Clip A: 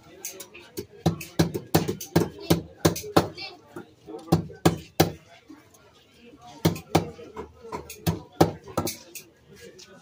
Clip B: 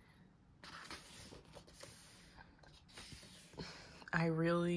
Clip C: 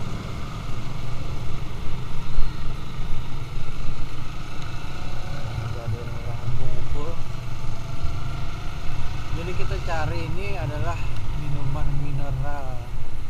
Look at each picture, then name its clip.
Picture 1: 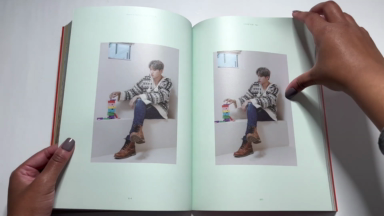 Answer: B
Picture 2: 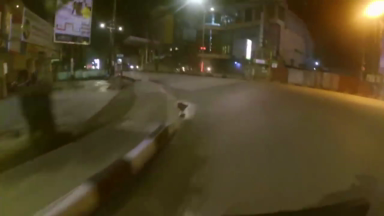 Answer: C